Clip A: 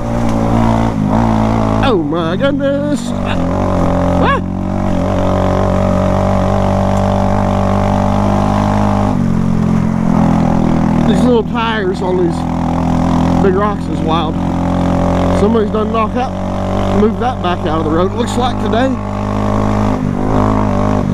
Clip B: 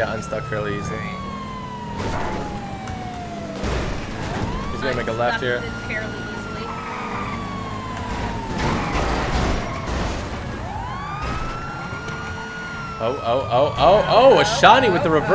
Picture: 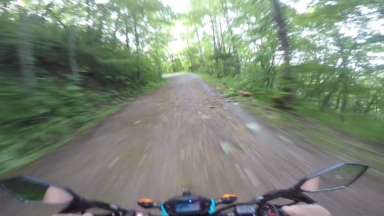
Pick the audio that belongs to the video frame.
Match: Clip A